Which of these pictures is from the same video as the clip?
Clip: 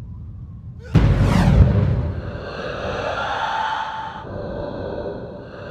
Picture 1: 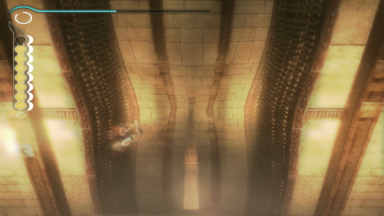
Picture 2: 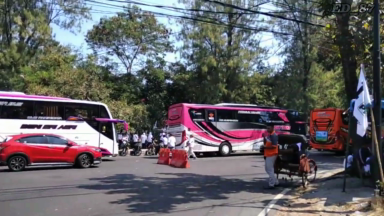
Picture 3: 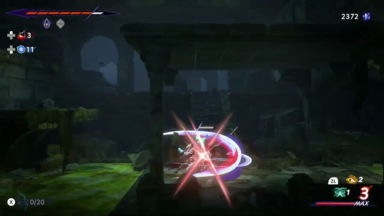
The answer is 1